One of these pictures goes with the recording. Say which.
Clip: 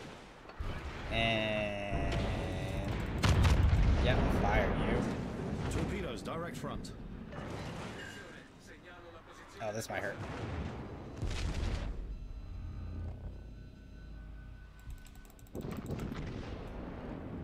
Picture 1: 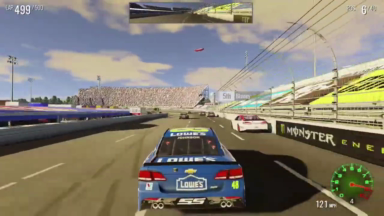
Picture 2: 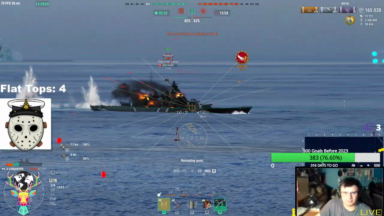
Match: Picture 2